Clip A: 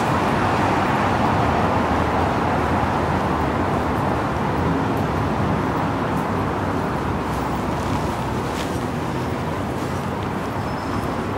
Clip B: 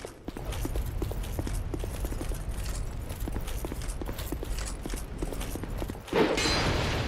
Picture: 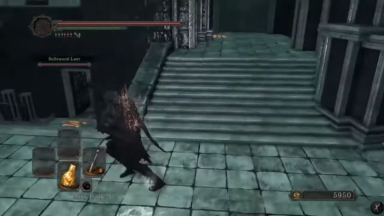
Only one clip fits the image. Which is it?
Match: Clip B